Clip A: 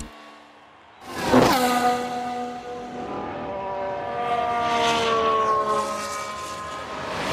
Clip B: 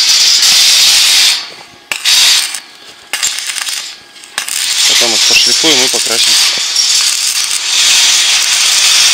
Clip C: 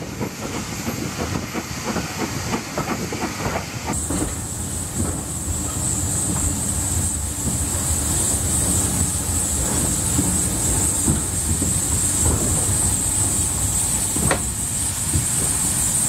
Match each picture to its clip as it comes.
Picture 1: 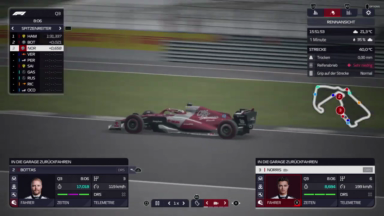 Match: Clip A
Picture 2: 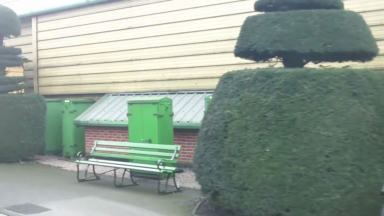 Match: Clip C